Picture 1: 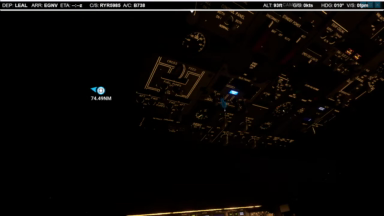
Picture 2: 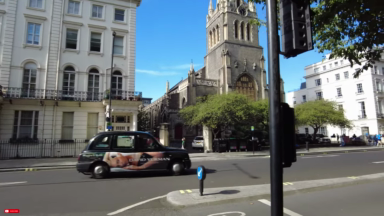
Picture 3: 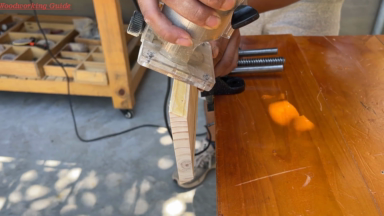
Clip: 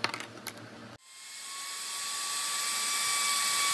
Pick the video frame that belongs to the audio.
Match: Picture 3